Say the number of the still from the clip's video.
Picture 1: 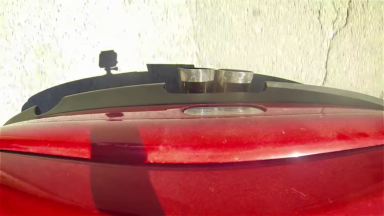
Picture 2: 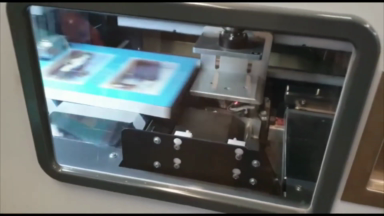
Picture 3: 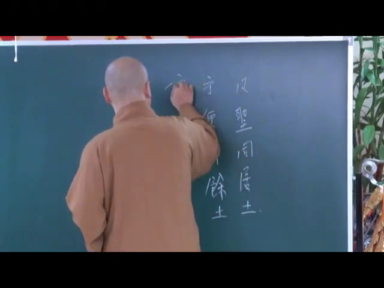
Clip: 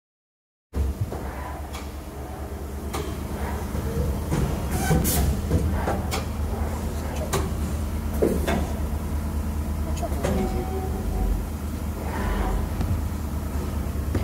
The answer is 2